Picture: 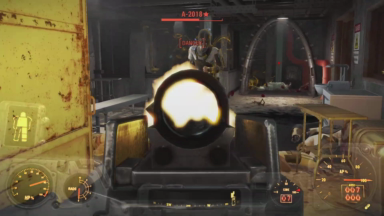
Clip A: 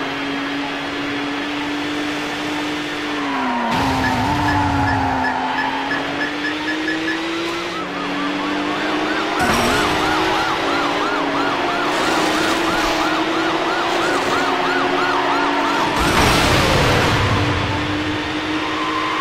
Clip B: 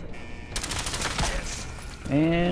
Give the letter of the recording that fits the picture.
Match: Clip B